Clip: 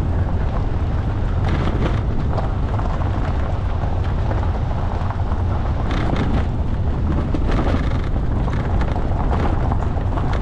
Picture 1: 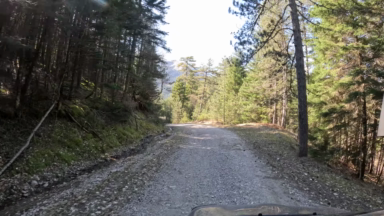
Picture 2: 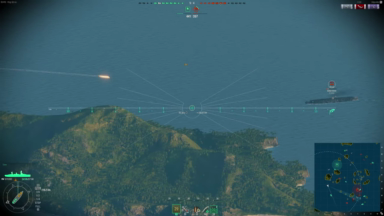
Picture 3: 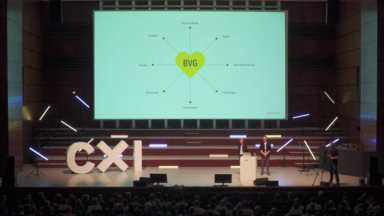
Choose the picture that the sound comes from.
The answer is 1